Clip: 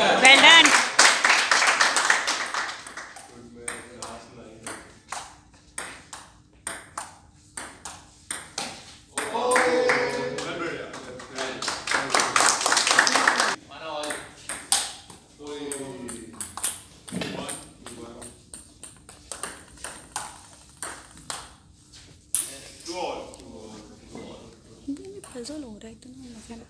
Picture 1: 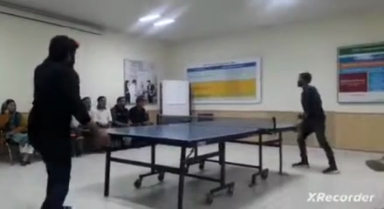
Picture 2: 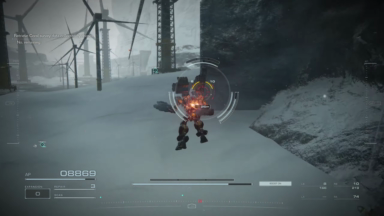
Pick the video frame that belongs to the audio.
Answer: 1